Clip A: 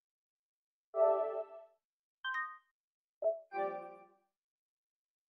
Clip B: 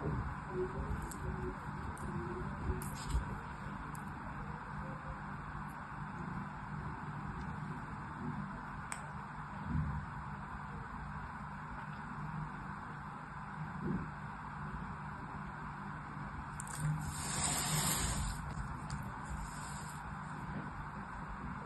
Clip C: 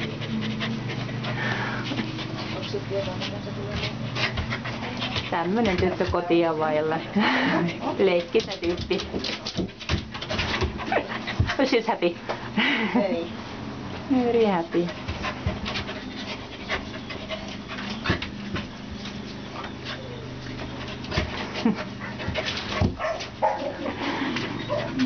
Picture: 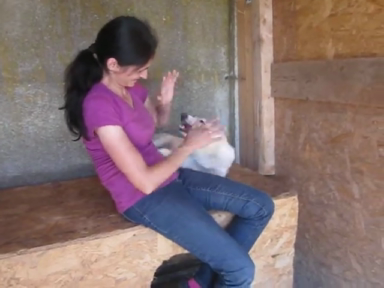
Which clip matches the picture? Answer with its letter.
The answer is C